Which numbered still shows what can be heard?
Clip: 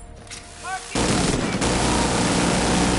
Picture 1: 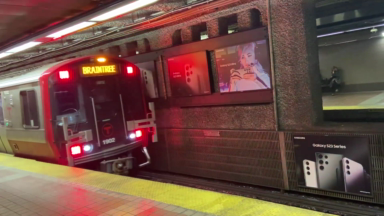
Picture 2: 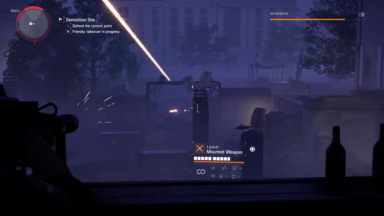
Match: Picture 2